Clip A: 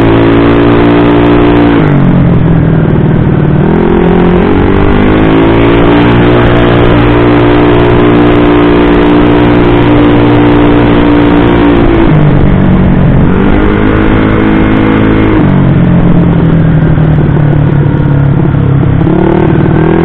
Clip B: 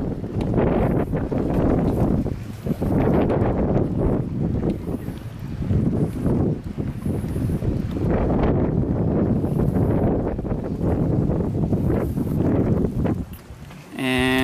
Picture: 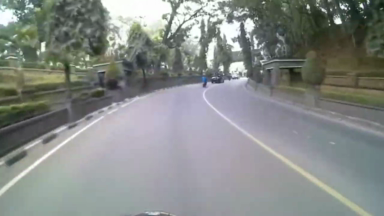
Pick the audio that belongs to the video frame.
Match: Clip A